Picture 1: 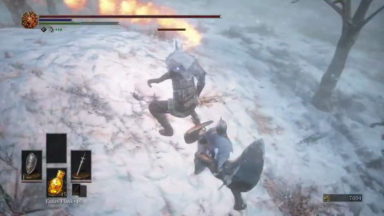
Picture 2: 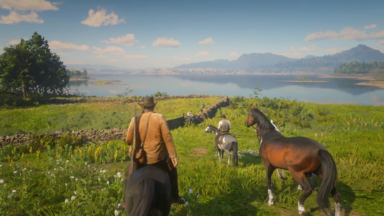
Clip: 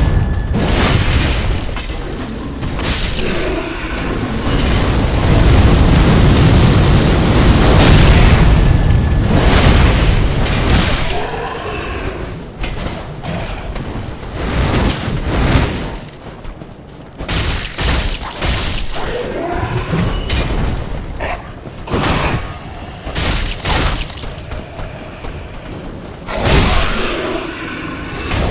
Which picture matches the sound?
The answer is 1